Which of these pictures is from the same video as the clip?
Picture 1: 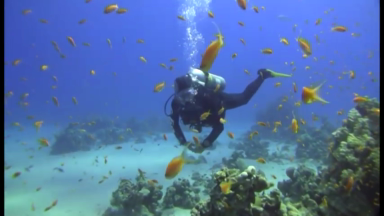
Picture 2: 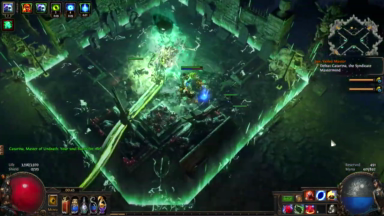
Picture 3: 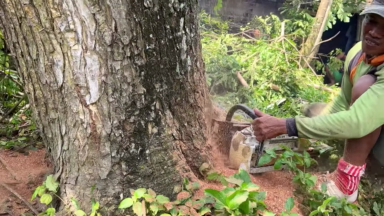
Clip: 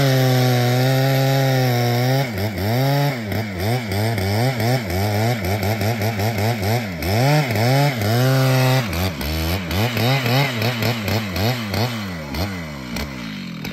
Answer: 3